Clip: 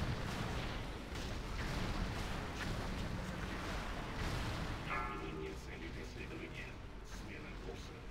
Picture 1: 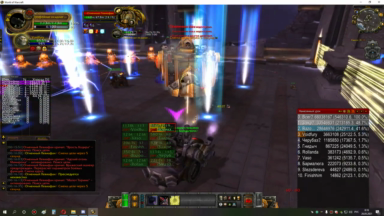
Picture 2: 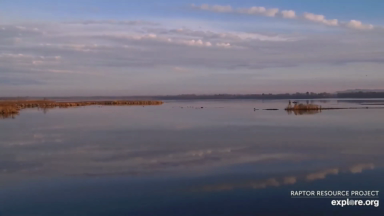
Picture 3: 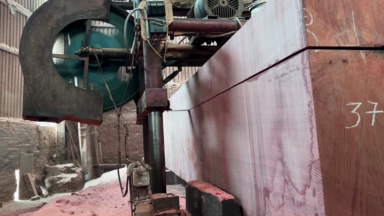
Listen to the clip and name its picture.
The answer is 1